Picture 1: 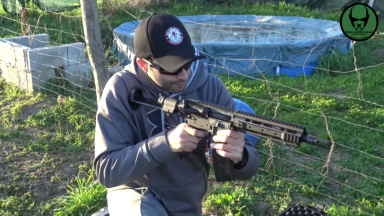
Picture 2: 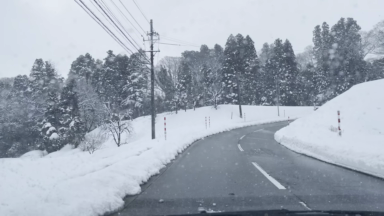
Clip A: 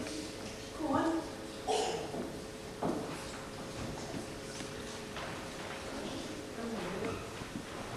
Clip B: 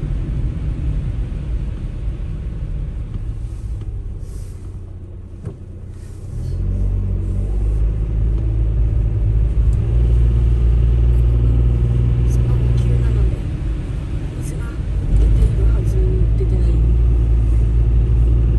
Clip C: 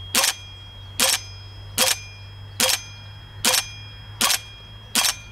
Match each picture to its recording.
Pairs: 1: C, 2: B